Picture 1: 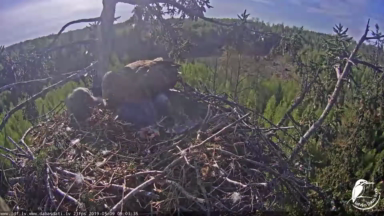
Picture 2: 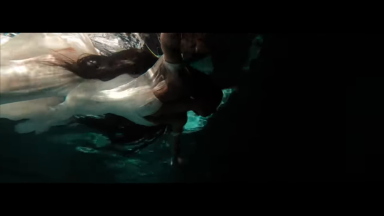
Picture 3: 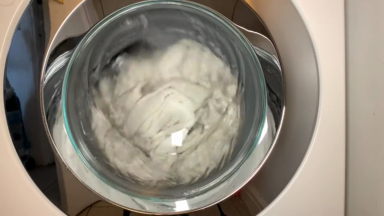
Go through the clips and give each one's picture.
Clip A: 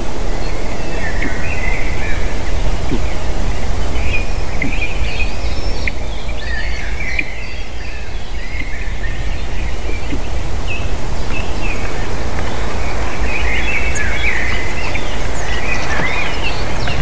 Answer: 1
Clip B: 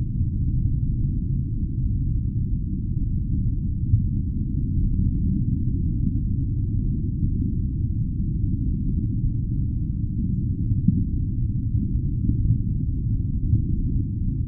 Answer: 2